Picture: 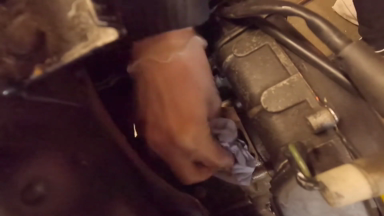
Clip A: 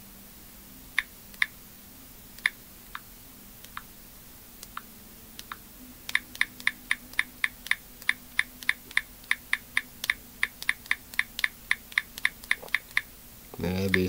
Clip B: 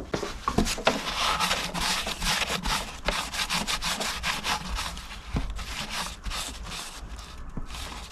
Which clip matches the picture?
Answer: B